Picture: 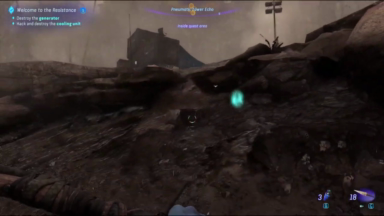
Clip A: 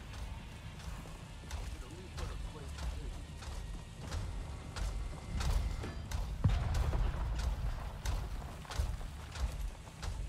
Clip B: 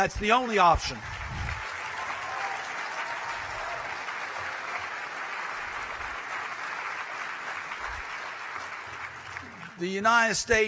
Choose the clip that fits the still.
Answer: A